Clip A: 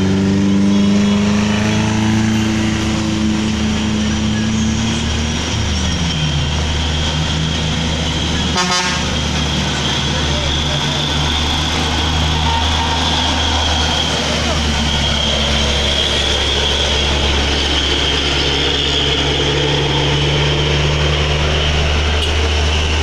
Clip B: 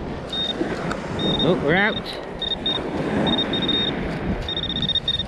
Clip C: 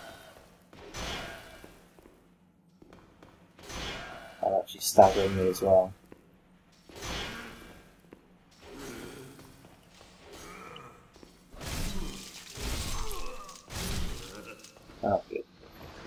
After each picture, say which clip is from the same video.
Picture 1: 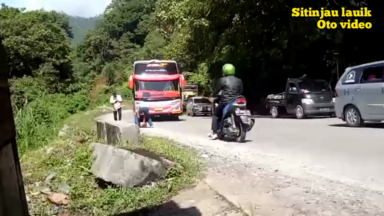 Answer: A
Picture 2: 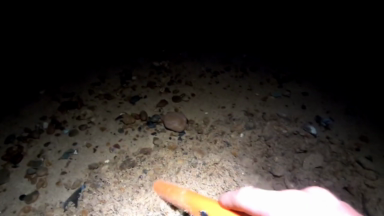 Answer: B